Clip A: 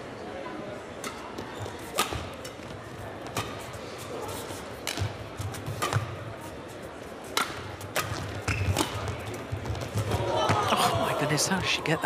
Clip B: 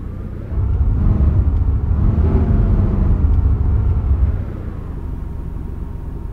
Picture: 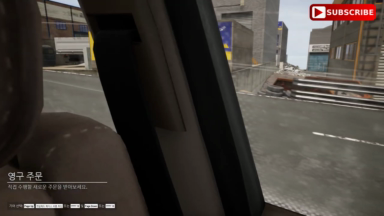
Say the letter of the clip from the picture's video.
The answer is B